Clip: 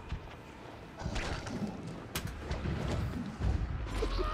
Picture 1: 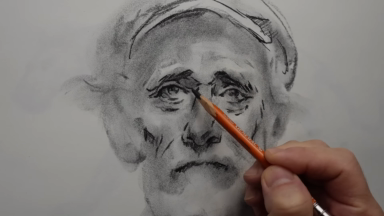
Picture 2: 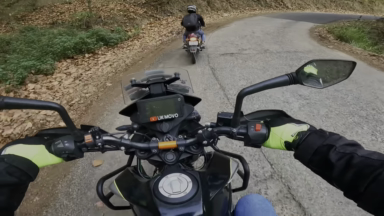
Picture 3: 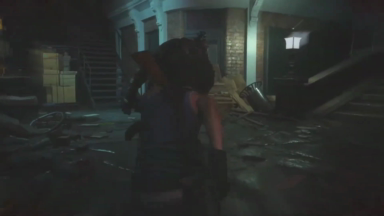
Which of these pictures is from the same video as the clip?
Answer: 3